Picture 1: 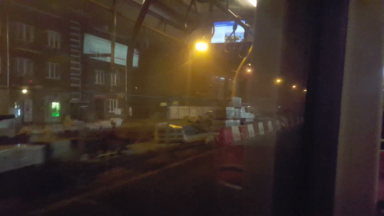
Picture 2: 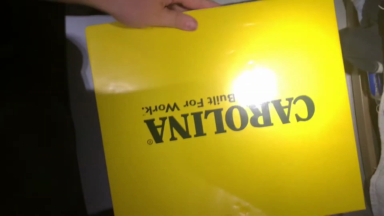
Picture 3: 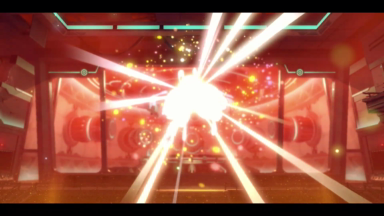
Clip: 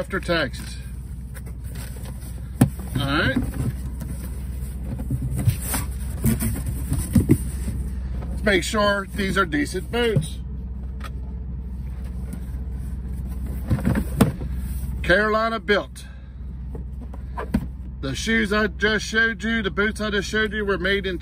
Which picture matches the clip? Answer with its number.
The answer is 2